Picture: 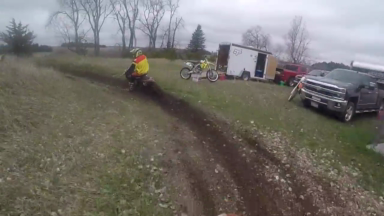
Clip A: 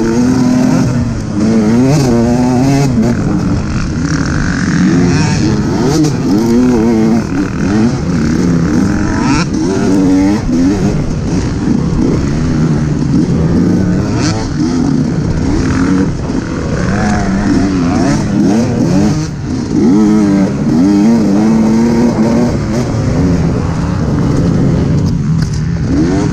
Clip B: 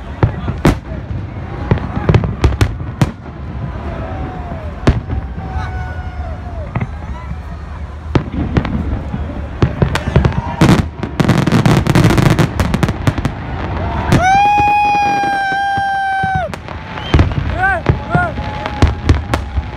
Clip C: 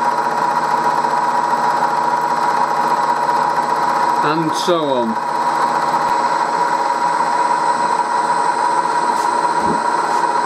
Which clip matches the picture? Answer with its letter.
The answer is A